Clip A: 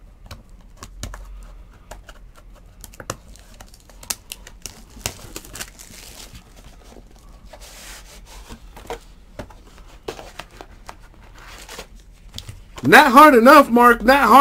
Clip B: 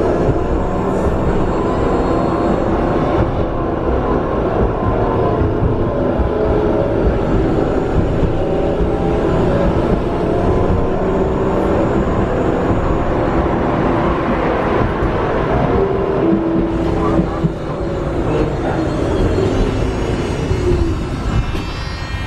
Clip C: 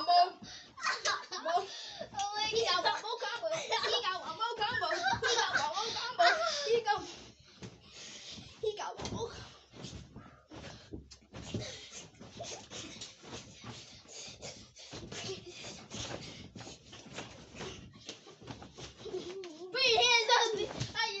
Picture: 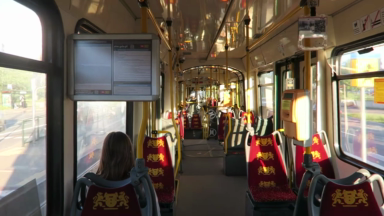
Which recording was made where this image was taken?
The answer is B